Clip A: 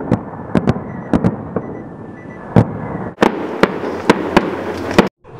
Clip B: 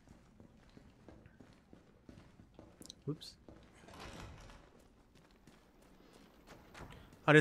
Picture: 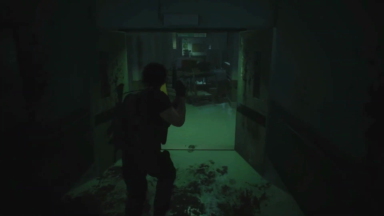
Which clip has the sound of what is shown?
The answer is B